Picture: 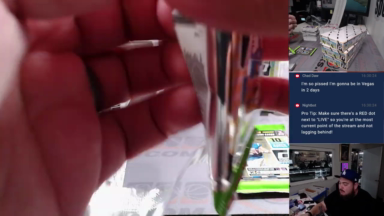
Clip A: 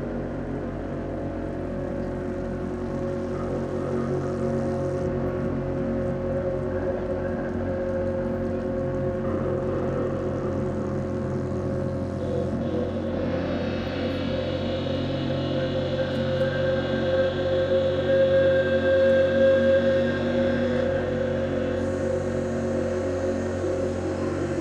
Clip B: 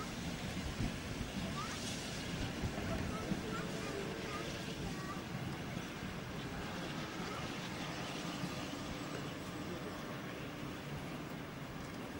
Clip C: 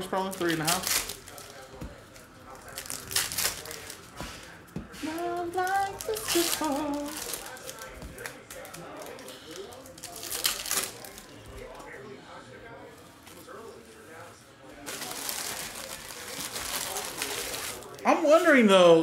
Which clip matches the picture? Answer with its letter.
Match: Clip C